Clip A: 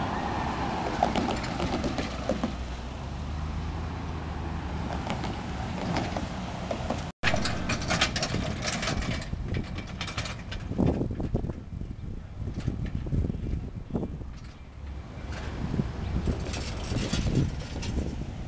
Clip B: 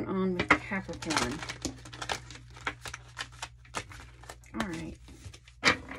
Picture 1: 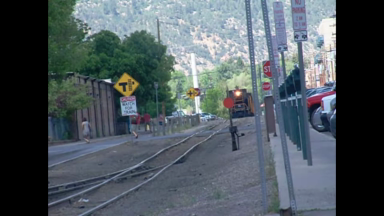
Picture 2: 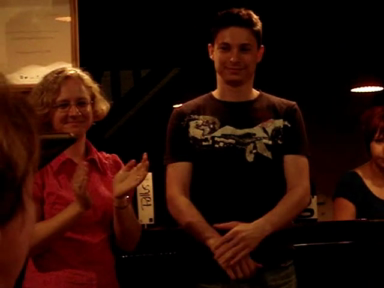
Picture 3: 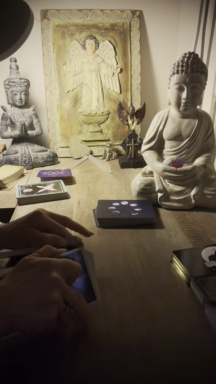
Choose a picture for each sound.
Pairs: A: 1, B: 3